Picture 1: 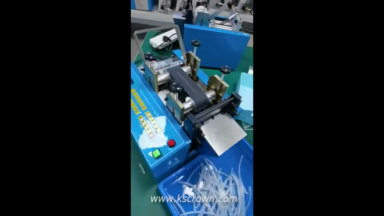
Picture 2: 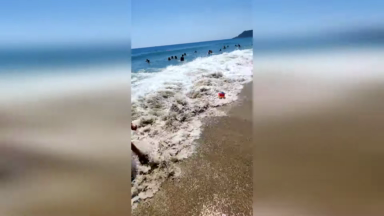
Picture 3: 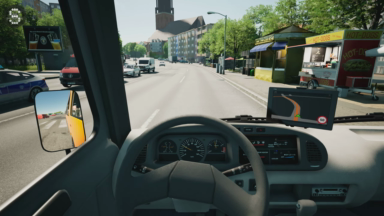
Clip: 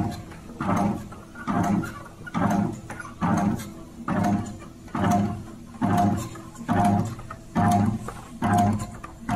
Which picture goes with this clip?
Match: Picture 1